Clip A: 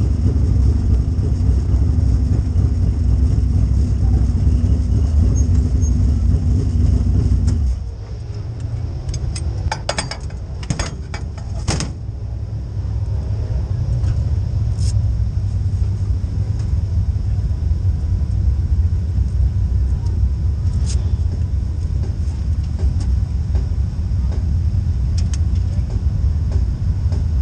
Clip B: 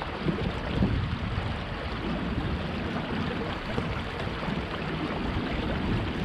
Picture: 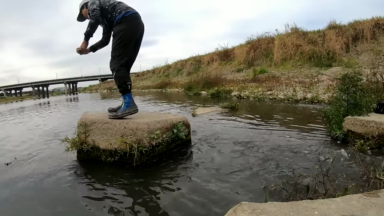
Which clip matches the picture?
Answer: B